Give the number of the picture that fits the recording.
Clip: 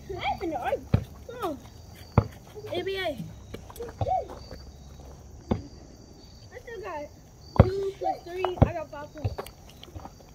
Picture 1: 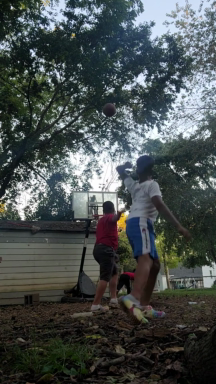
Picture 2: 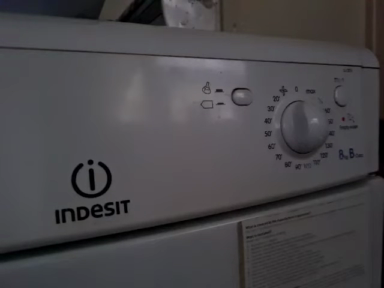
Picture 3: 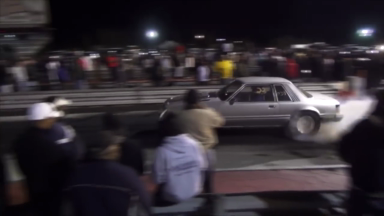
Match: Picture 1